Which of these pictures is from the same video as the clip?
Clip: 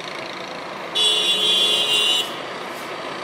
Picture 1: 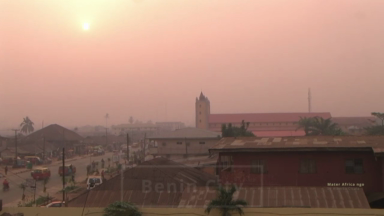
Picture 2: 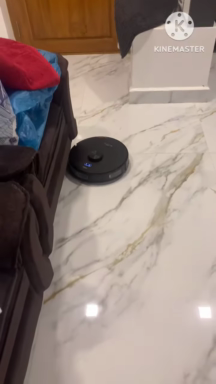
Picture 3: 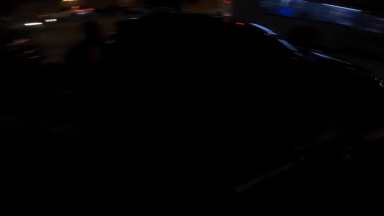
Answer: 1